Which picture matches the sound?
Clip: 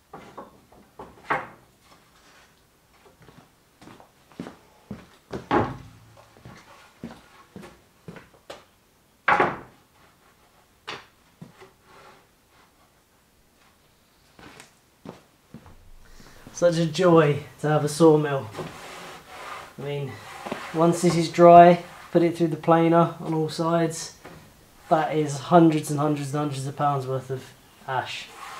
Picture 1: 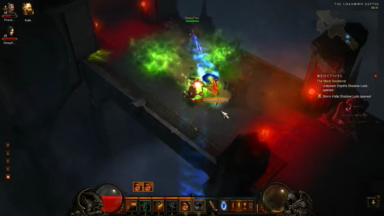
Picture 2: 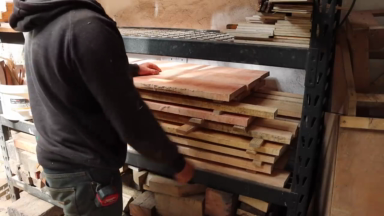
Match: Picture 2